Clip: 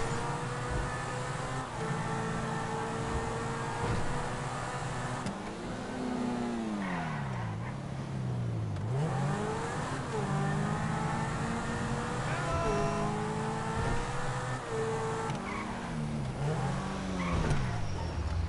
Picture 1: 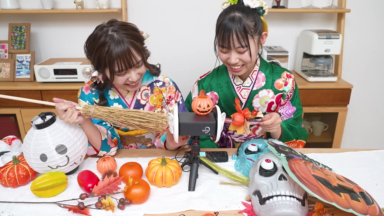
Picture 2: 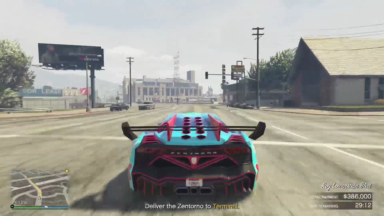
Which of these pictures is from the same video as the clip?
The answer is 2